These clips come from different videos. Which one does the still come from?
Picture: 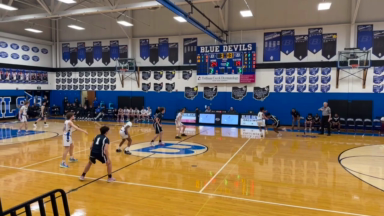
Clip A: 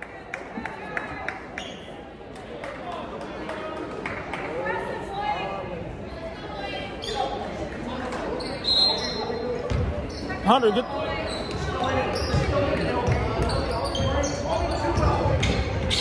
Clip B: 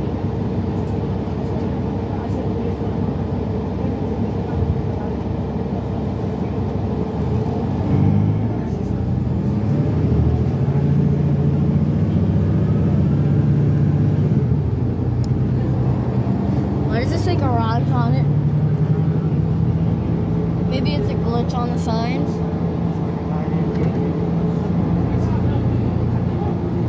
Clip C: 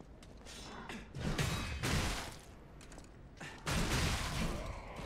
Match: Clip A